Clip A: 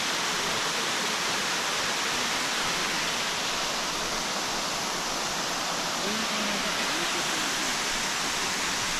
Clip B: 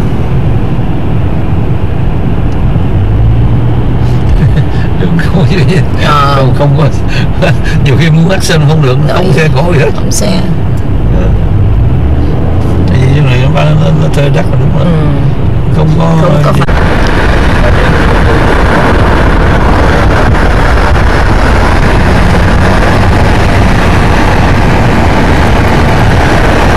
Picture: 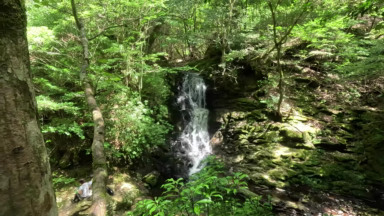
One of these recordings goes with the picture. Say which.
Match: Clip A